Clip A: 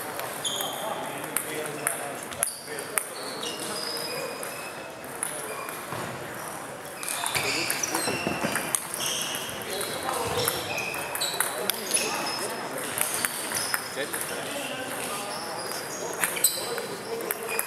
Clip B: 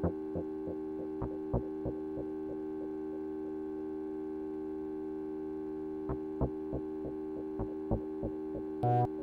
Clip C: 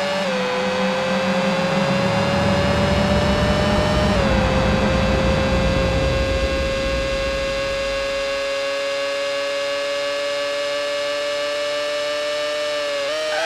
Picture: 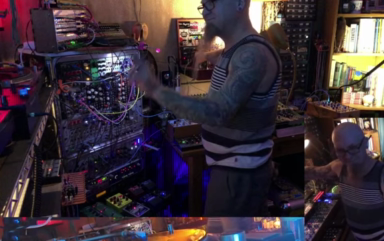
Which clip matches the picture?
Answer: B